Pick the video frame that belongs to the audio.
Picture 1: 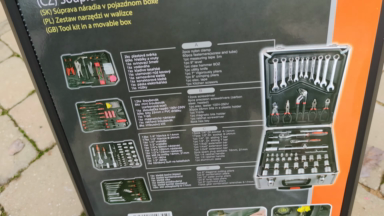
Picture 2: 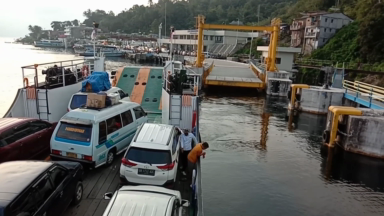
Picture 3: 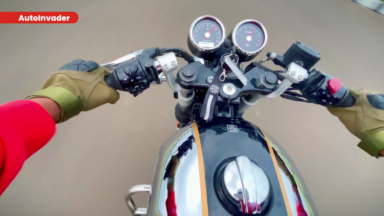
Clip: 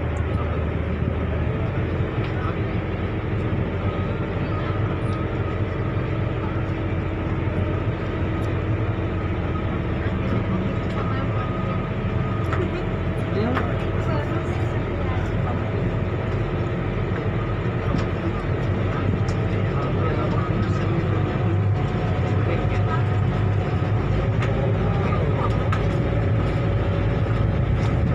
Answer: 2